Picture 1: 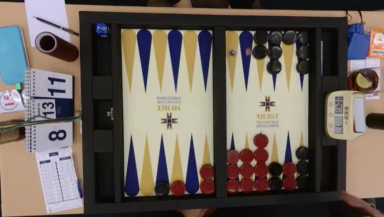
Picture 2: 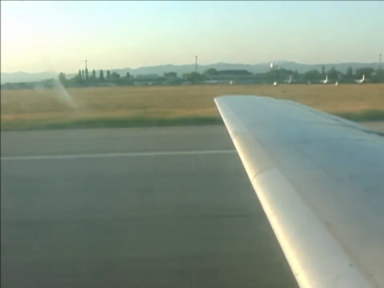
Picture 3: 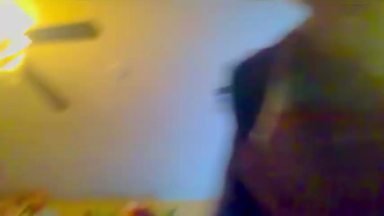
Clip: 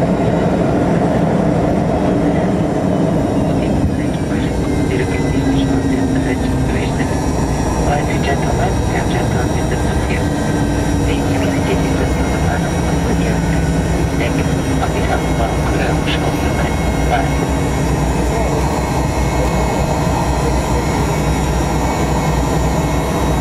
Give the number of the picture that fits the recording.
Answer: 2